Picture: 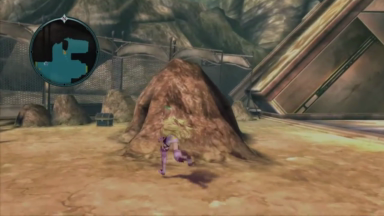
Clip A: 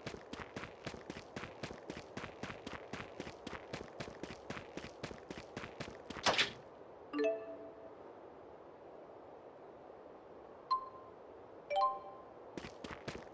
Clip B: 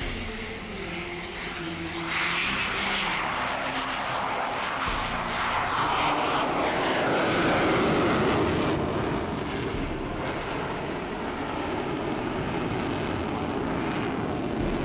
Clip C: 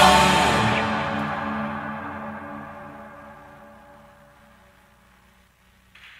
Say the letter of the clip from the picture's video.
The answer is A